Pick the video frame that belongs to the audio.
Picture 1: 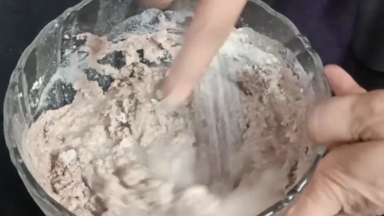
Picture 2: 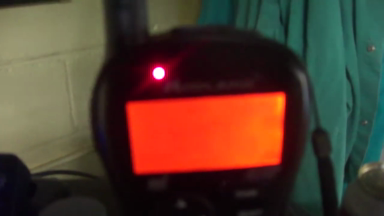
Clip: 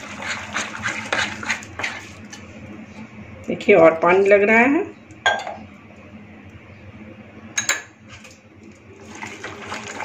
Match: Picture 1